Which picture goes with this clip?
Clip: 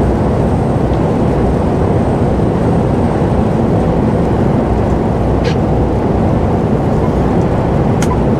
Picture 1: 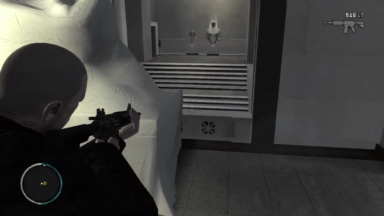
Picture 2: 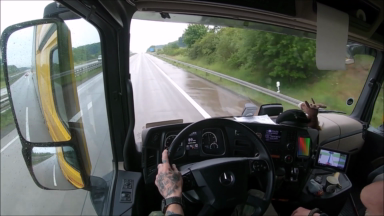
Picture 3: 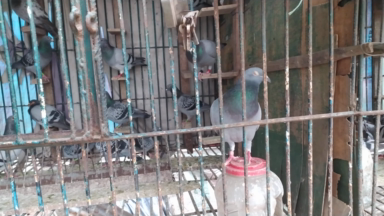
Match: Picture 2